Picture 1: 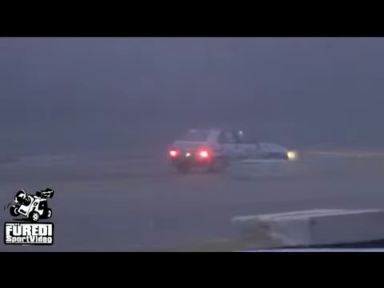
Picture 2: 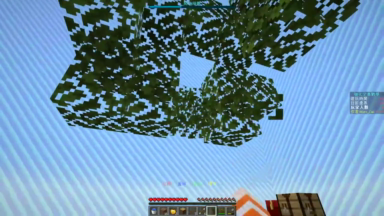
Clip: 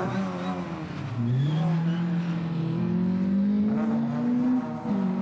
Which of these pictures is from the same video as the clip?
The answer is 1